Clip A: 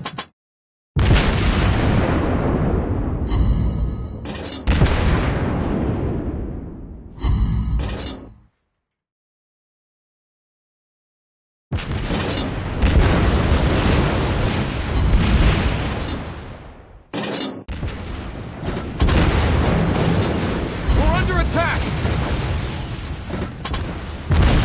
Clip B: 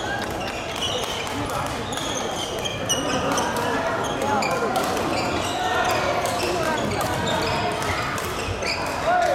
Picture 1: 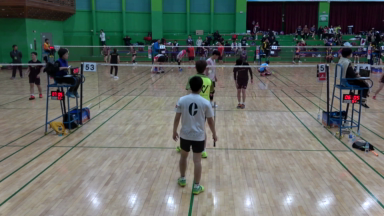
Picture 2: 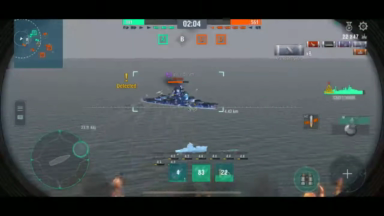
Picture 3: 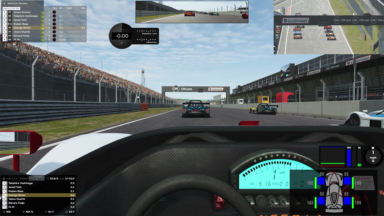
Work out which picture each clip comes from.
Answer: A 2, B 1